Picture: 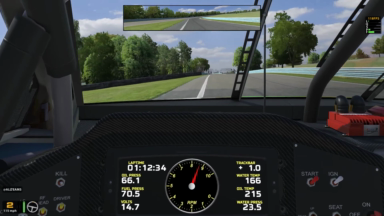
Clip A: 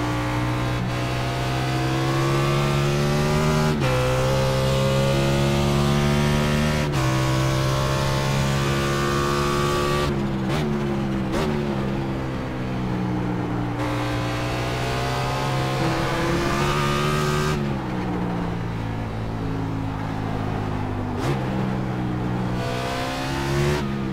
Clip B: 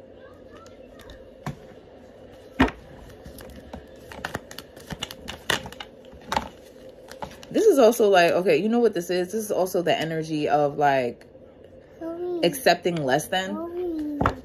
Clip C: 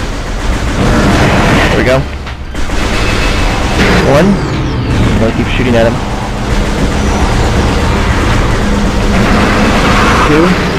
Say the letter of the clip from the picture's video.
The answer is A